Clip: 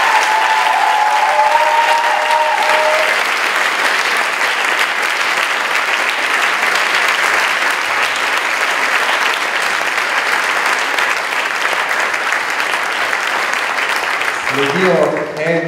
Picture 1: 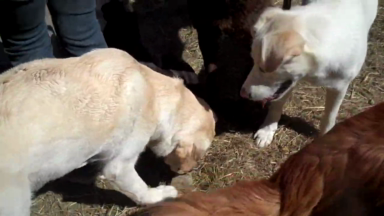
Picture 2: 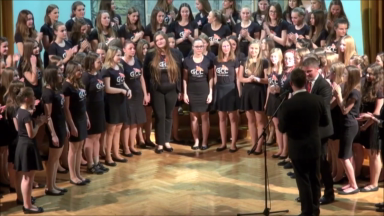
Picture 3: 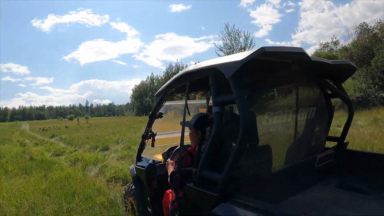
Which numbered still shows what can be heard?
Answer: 2